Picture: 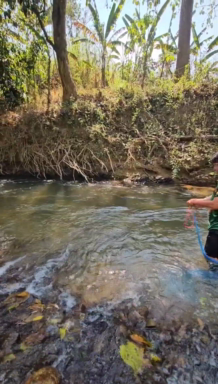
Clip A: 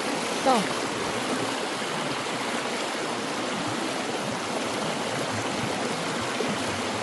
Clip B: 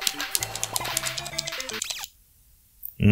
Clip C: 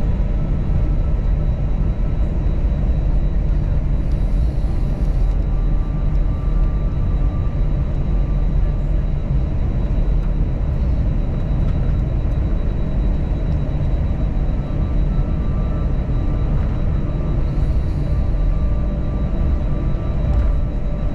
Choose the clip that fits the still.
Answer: A